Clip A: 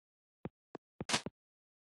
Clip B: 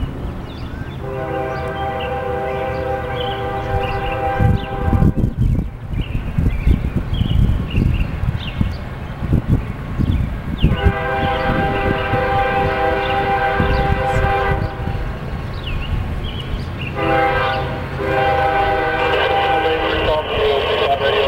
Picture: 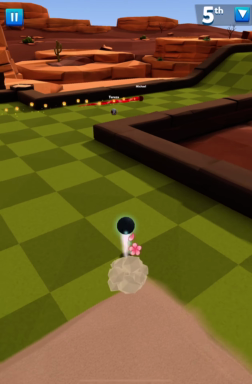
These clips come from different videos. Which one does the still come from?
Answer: A